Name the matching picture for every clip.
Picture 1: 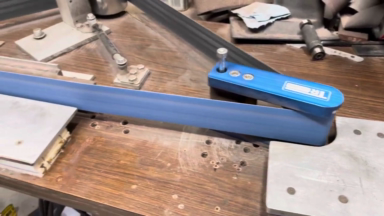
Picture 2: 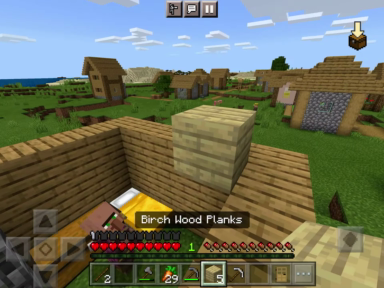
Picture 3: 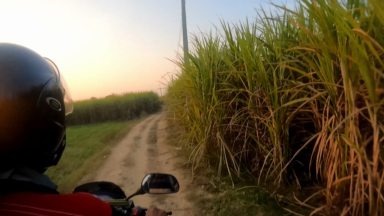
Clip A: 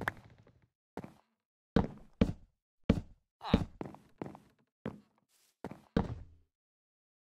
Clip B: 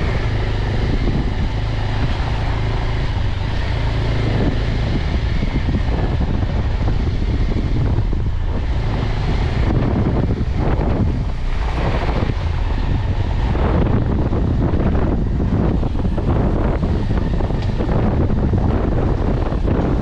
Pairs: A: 2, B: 3